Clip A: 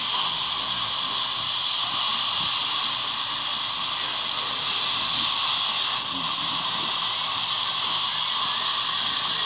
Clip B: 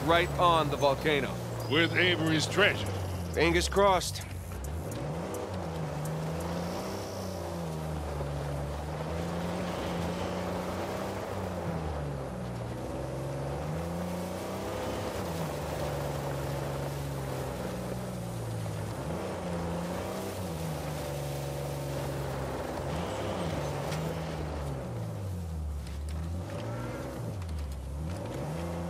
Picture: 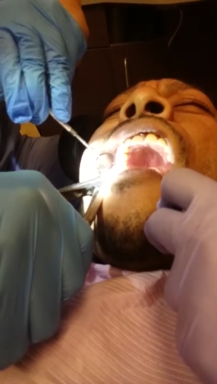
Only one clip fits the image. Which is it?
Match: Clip A